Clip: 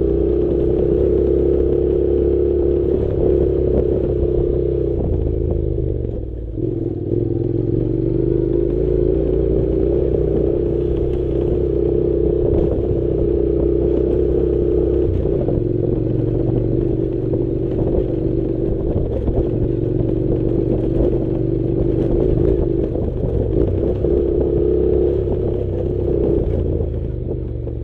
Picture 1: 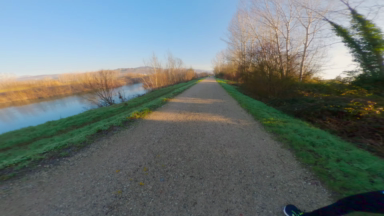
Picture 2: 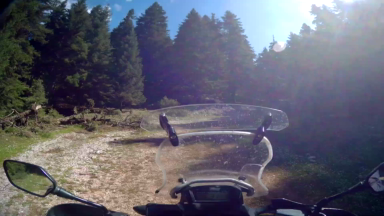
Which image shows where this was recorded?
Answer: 2